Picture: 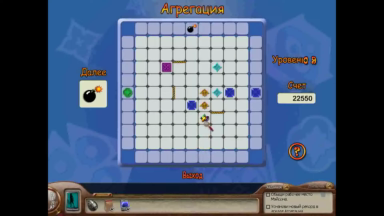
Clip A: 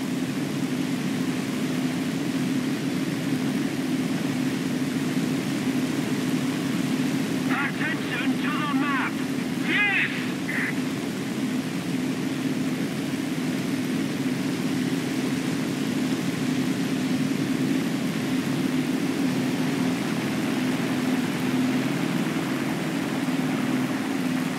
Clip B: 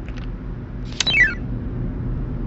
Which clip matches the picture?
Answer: B